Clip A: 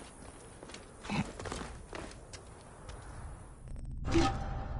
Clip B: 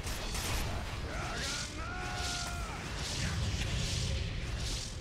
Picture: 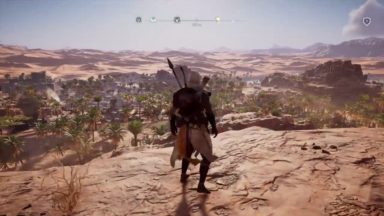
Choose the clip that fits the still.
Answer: A